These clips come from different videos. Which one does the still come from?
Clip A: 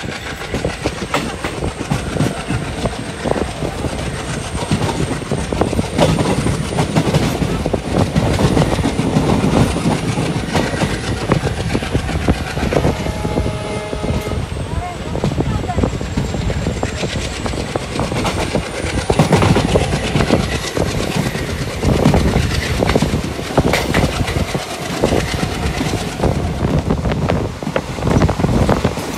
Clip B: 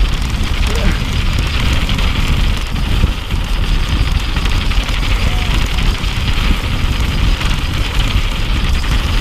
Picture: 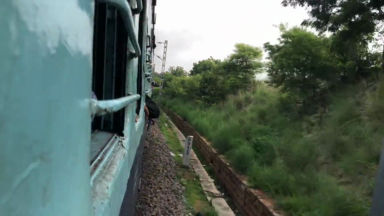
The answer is A